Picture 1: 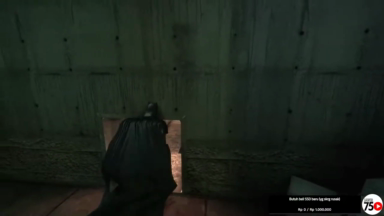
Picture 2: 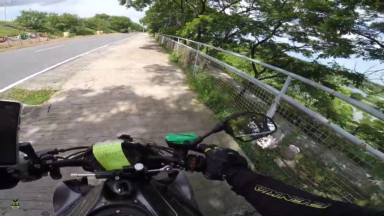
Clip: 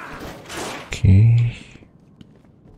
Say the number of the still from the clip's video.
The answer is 1